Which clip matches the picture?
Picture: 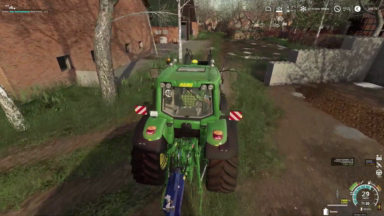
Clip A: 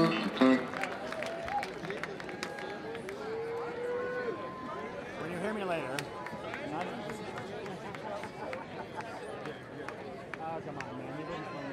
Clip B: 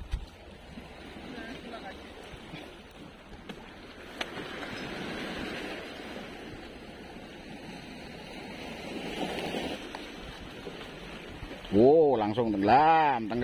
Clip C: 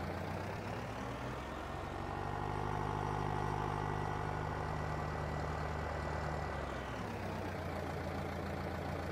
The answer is C